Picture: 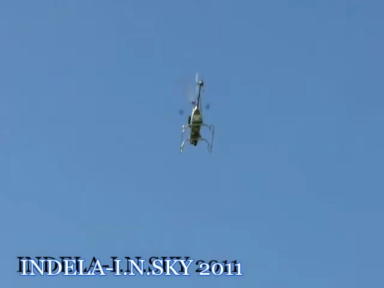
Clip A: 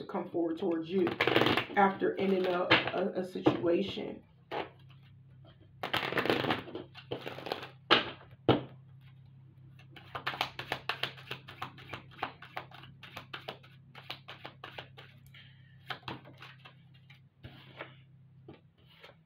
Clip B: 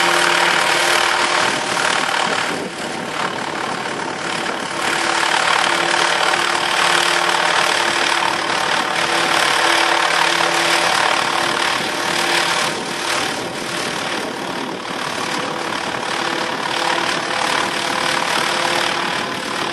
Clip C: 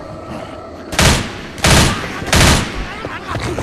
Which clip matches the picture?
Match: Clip B